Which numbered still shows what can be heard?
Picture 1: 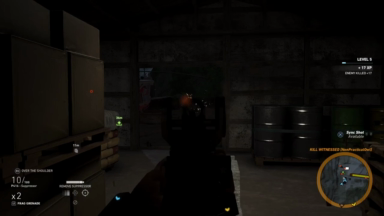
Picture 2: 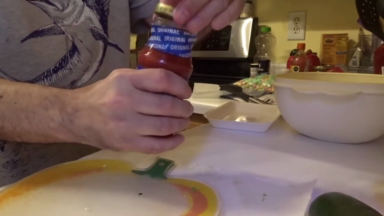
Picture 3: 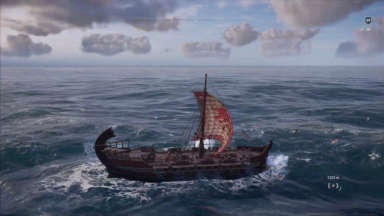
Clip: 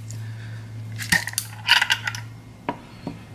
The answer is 2